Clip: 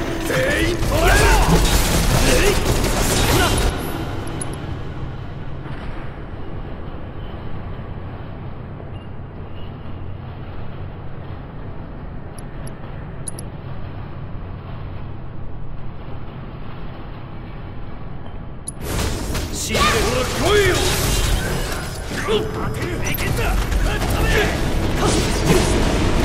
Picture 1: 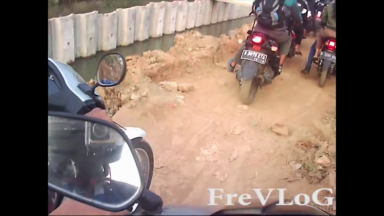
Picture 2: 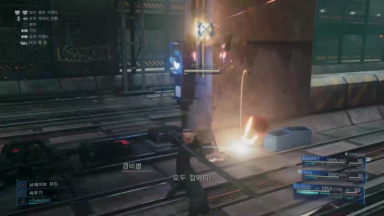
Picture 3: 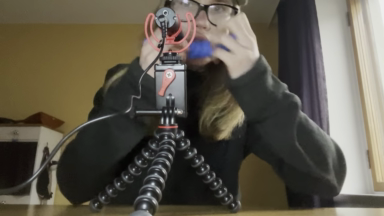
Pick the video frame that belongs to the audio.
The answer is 2